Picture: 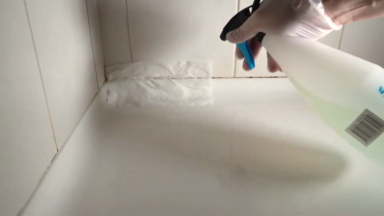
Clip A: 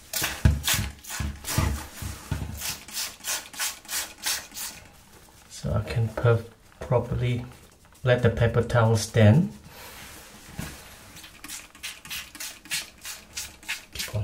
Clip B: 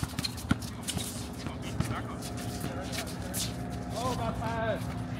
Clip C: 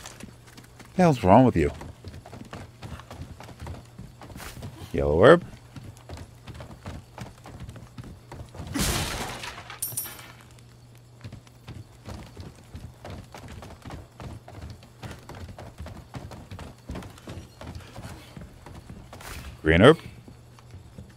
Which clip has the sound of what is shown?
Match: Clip A